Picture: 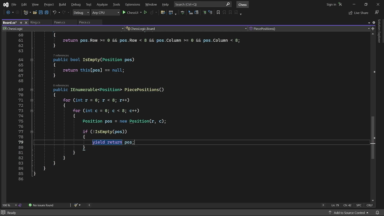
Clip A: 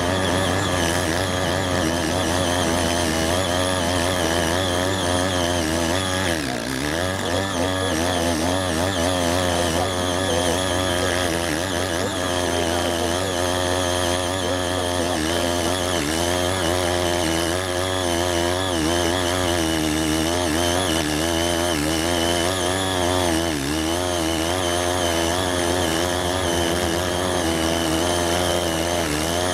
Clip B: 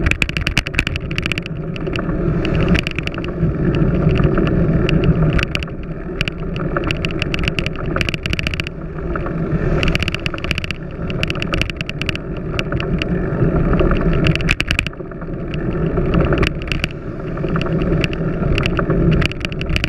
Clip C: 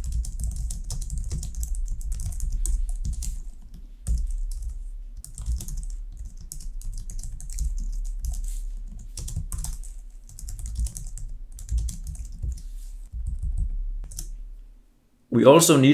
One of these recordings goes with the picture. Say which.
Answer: C